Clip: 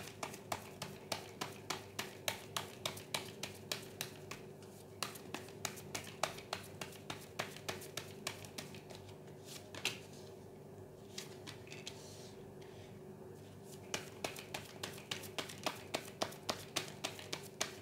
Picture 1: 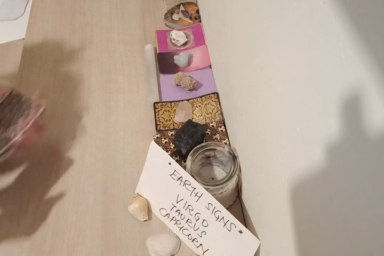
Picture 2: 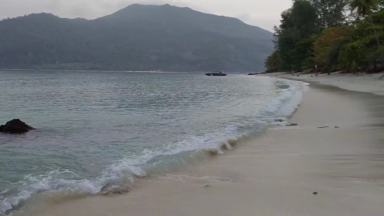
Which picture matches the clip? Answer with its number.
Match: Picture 1